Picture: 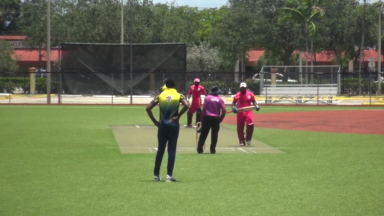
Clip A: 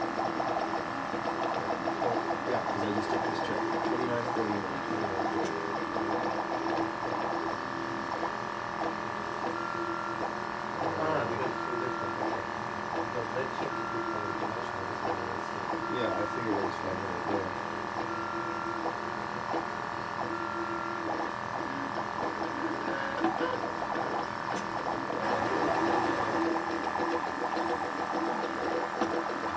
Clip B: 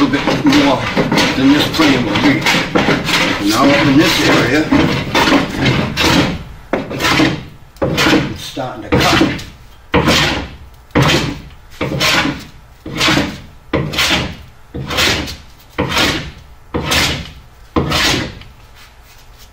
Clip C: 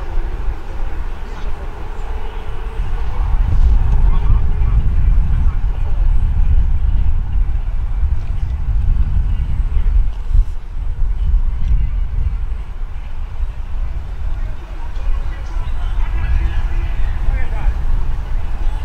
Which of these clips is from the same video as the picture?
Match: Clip C